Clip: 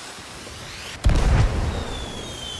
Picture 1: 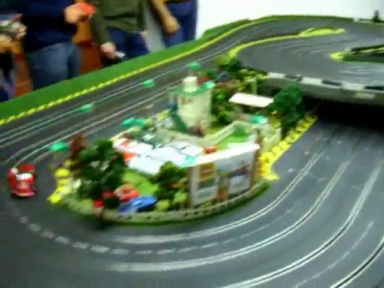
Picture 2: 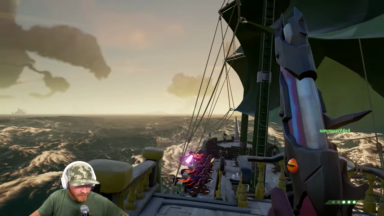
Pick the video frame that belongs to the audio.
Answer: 2